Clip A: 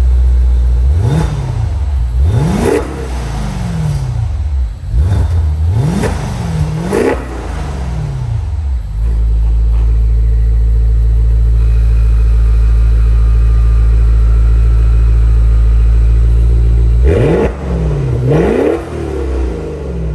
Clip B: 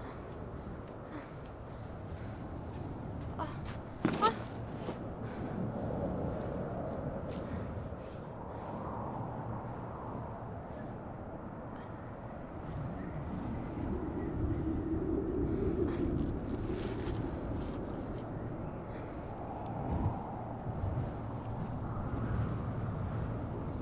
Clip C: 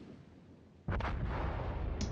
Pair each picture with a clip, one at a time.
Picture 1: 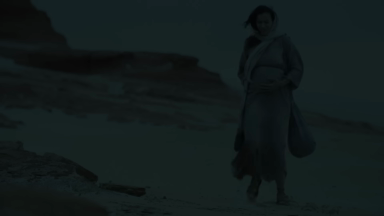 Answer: B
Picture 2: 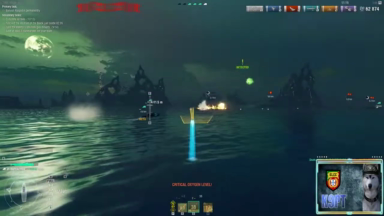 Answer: C